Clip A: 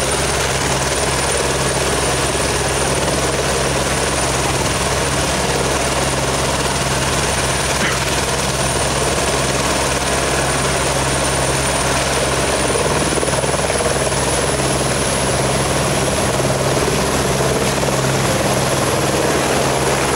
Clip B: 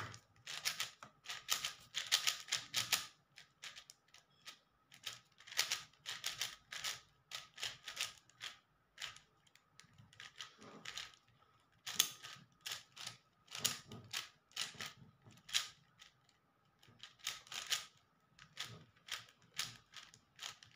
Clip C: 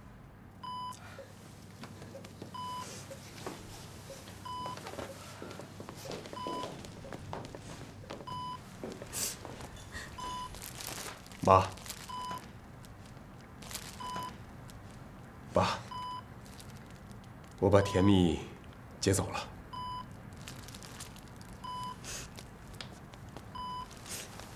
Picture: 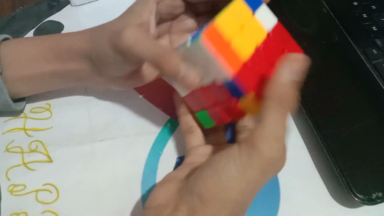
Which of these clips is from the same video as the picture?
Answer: B